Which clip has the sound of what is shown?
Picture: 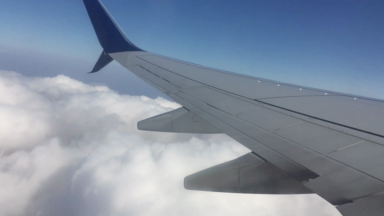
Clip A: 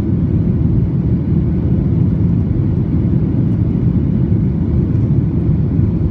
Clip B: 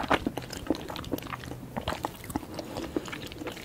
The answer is A